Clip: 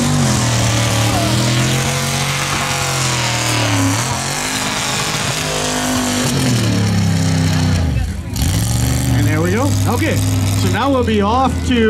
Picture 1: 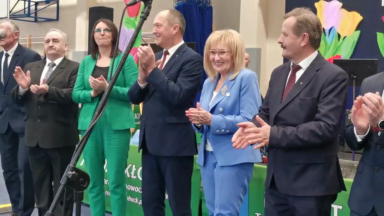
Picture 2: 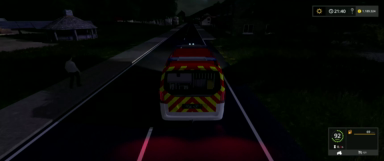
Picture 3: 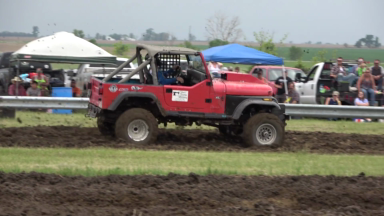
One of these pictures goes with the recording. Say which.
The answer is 3